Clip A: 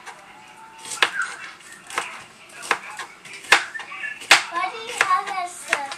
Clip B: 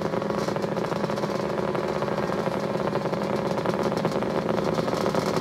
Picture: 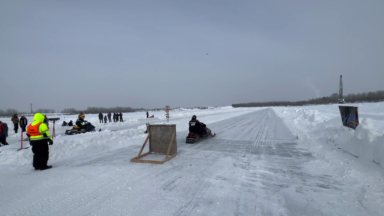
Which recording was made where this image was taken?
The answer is B